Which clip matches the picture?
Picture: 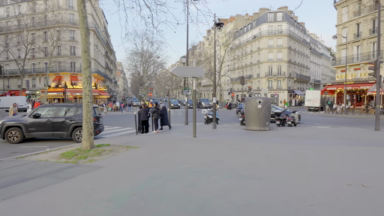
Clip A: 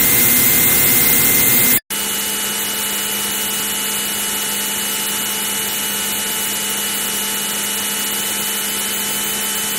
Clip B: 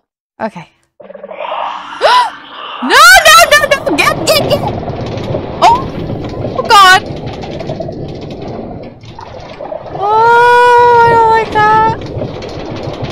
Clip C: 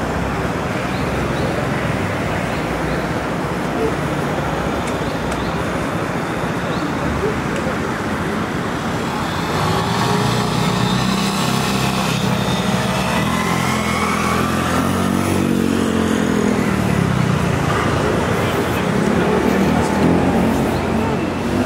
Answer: C